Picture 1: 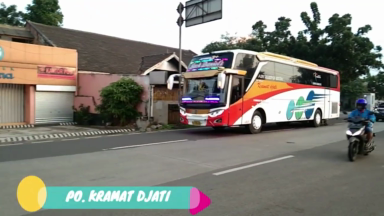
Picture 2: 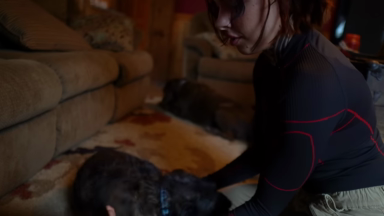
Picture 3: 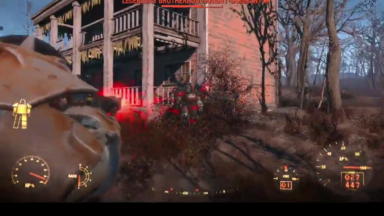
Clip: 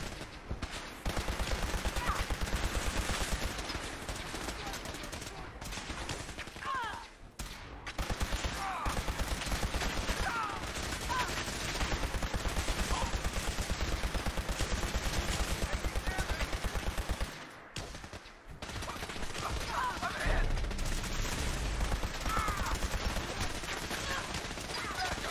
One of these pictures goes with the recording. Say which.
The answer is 3